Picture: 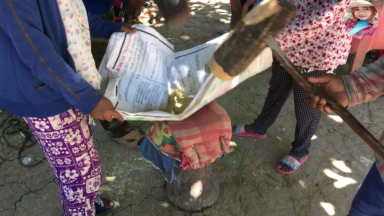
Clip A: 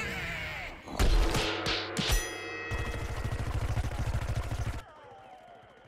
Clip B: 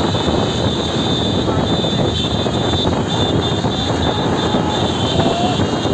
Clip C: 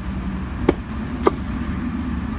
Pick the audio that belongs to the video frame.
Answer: C